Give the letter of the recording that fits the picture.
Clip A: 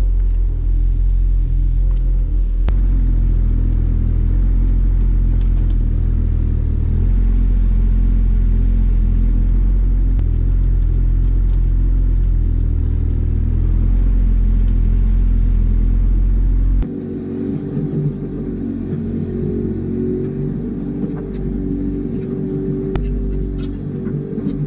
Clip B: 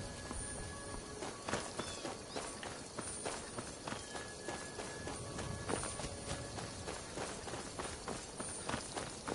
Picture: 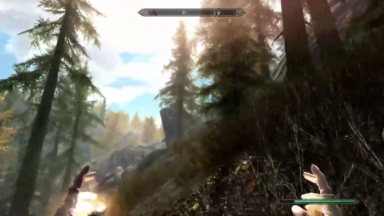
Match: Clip B